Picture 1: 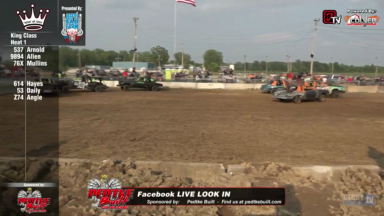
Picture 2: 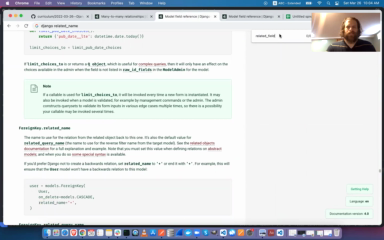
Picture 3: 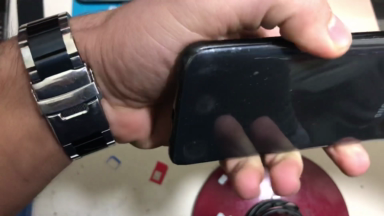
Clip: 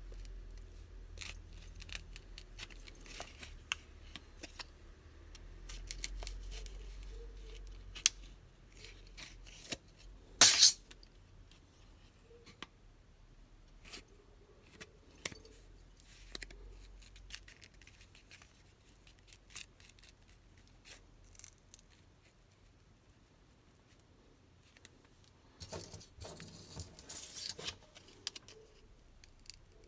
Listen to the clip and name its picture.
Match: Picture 3